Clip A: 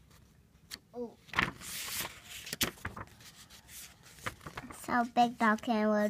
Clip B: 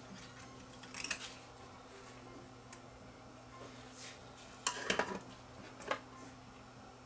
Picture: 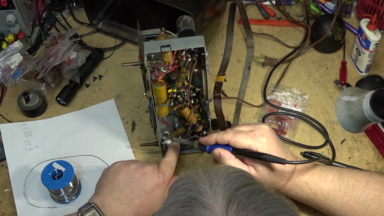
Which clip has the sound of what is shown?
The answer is B